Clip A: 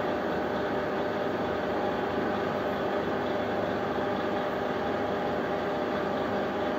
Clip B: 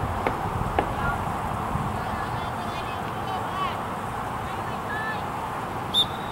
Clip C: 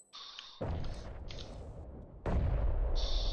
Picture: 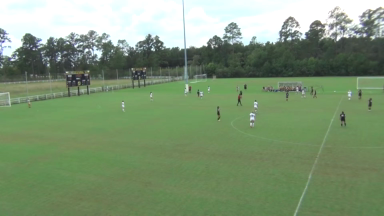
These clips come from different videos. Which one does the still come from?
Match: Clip B